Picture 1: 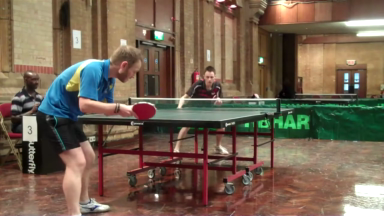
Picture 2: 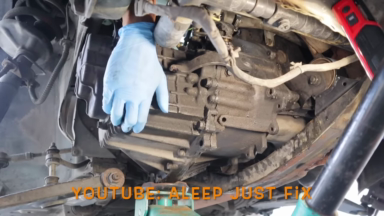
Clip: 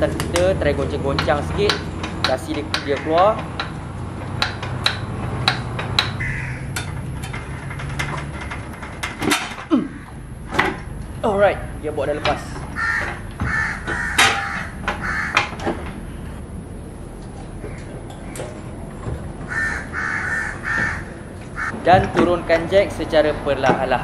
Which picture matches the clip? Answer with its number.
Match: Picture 2